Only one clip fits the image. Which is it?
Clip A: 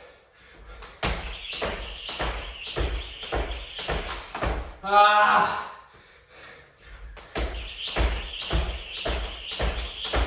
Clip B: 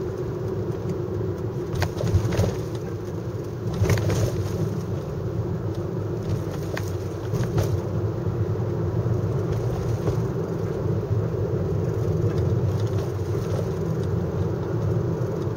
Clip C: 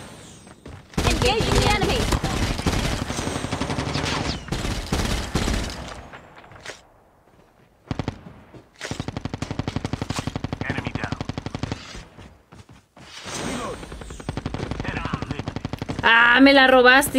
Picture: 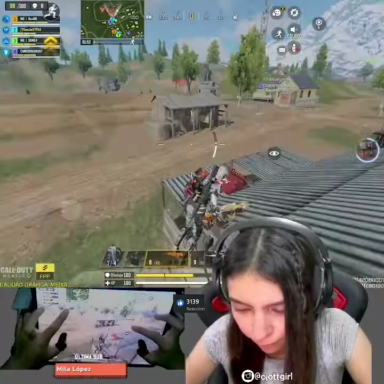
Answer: C